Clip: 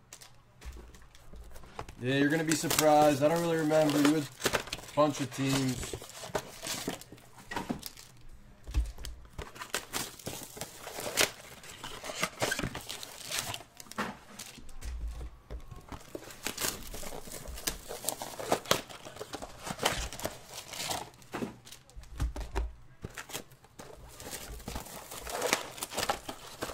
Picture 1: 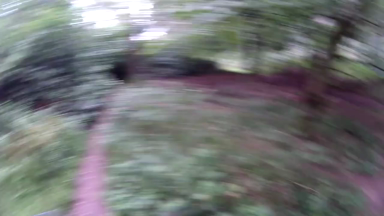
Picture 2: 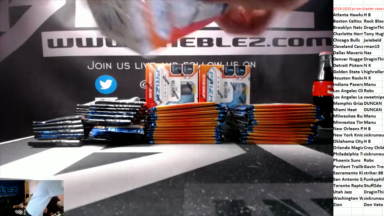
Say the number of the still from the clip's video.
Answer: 2